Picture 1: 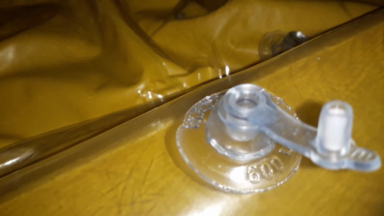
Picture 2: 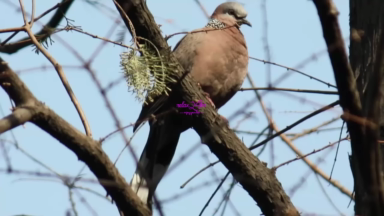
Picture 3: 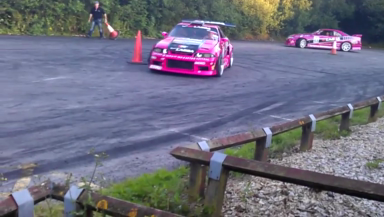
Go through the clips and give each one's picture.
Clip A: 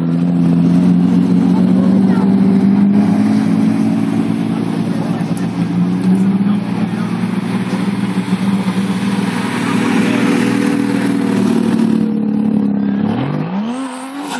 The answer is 3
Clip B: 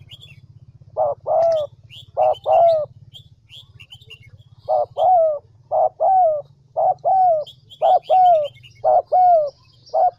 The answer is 2